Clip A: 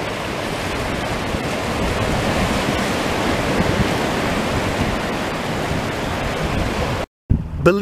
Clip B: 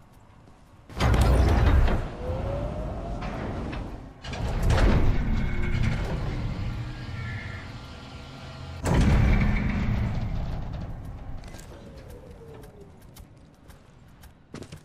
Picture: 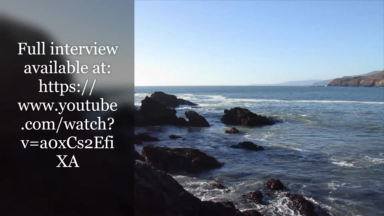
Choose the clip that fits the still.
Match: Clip A